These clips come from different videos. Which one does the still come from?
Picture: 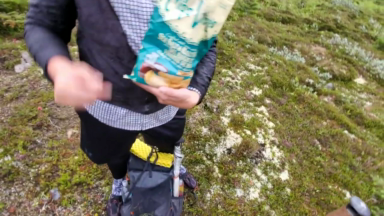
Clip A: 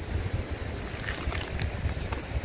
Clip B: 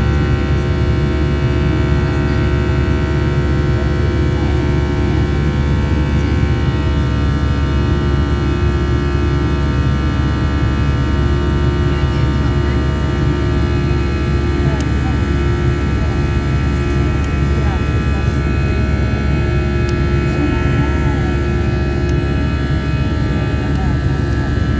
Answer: A